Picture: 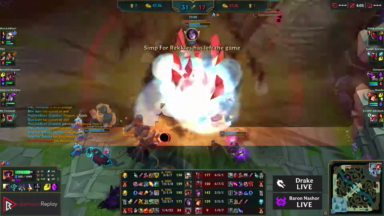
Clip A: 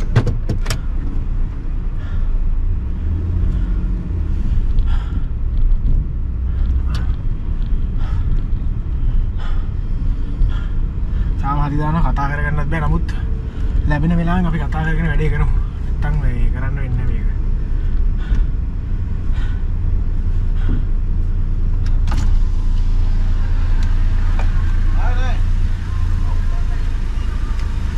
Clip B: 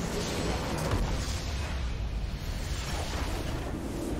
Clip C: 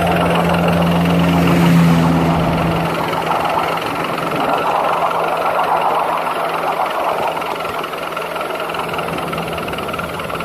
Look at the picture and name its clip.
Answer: B